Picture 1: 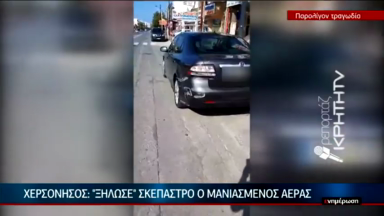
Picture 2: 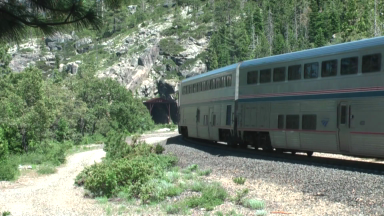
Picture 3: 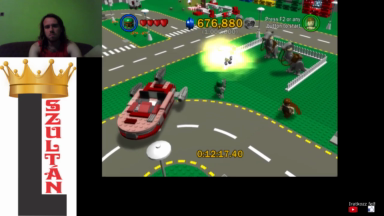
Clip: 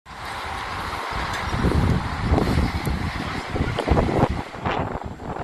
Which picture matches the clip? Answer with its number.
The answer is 1